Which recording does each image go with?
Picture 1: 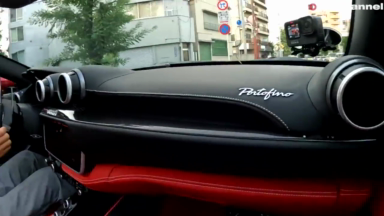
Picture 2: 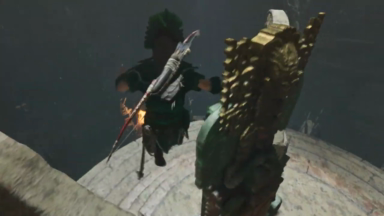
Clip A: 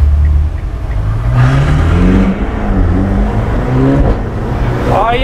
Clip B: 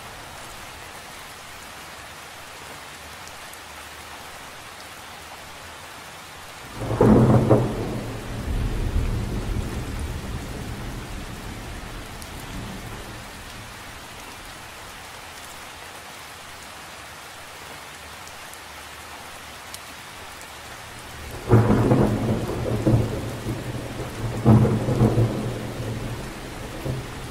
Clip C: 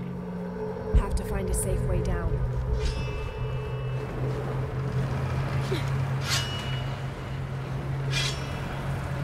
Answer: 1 A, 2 C